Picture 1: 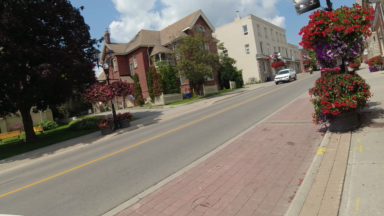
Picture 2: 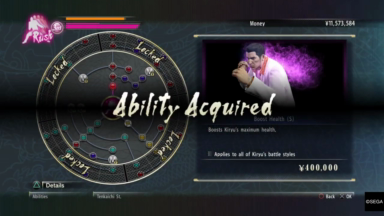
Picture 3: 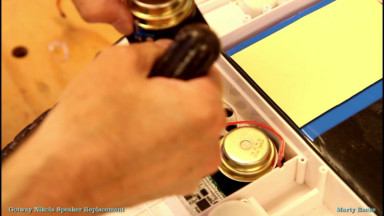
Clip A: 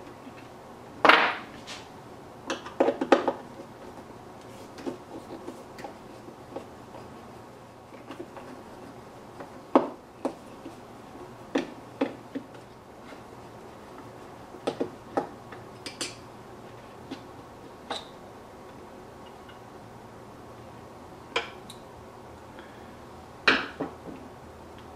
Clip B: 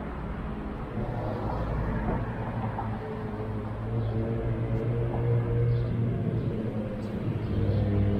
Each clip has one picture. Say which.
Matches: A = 3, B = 1